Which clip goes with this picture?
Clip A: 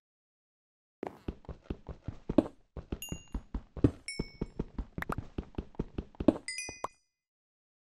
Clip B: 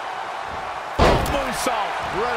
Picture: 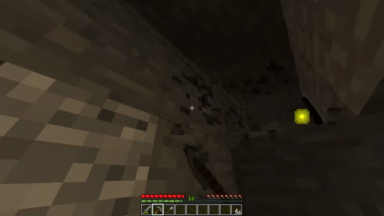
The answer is A